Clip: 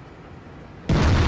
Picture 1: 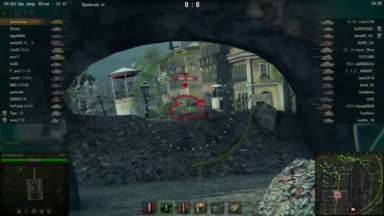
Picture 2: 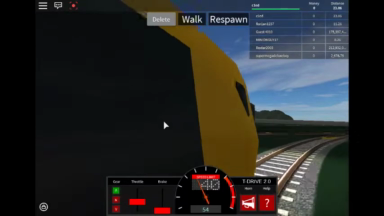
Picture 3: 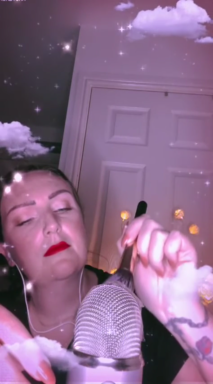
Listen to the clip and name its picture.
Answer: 1